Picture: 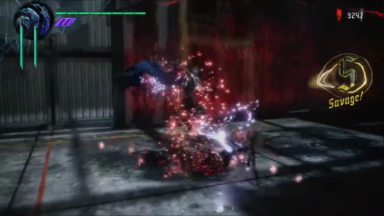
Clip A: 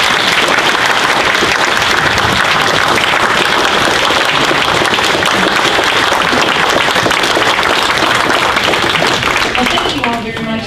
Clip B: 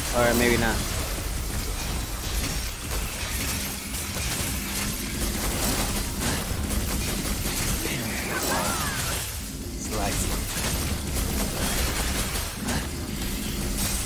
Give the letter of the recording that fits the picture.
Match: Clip B